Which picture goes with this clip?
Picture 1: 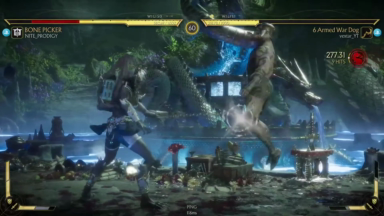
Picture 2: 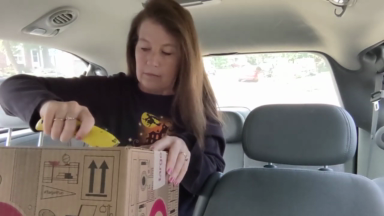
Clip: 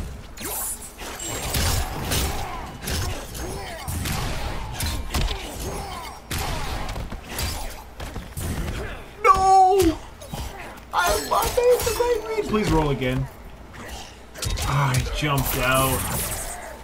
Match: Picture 1